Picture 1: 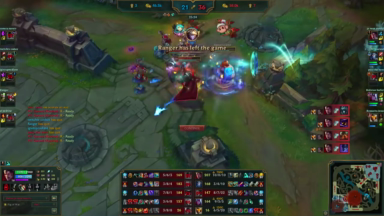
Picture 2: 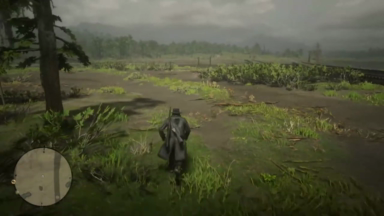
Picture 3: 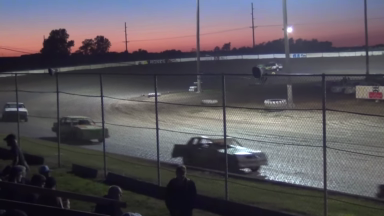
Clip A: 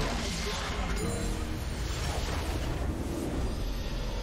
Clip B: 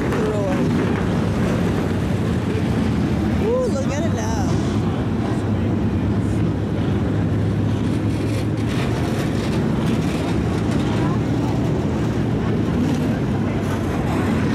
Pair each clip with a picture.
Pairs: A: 1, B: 3